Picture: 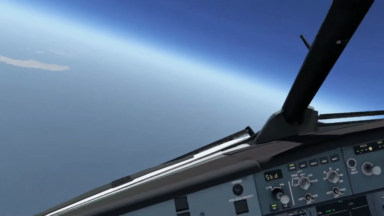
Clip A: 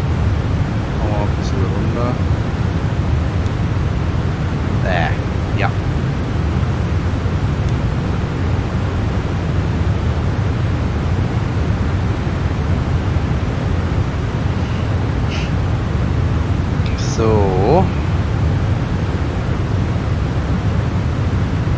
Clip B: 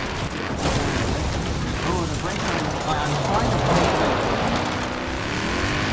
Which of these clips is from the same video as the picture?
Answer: A